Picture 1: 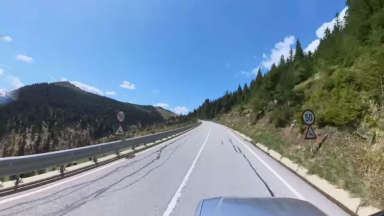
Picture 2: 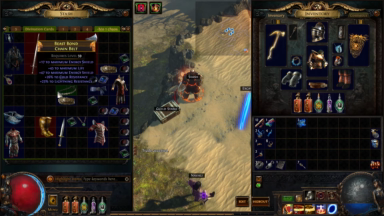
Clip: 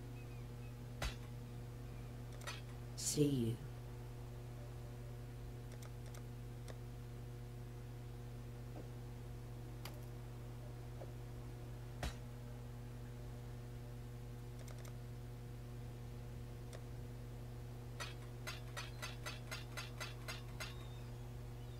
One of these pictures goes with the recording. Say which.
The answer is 2